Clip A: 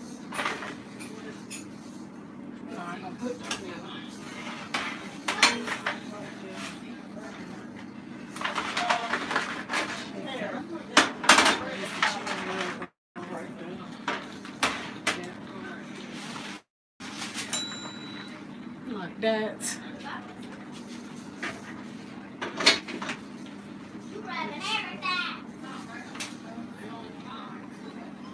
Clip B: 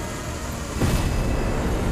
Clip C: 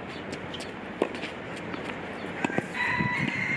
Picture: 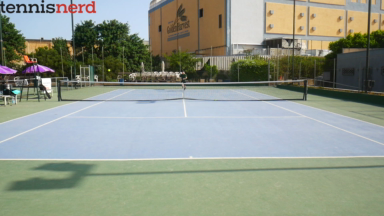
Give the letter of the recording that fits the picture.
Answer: C